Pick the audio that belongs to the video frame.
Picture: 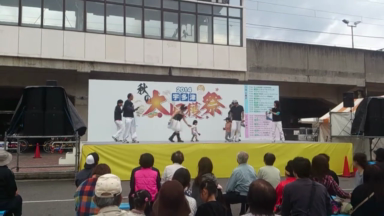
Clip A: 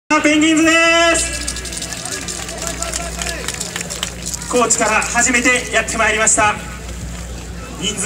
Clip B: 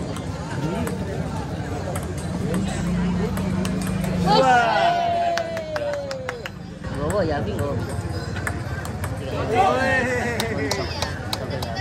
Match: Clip A